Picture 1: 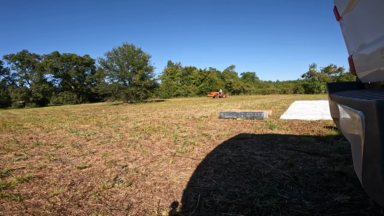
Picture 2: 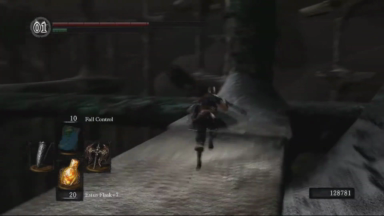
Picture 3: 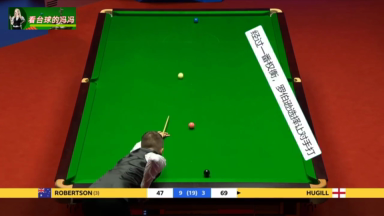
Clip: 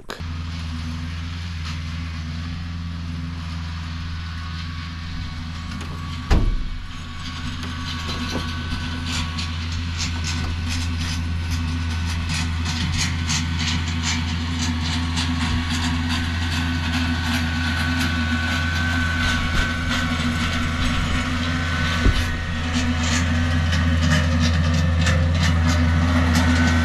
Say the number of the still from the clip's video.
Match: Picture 1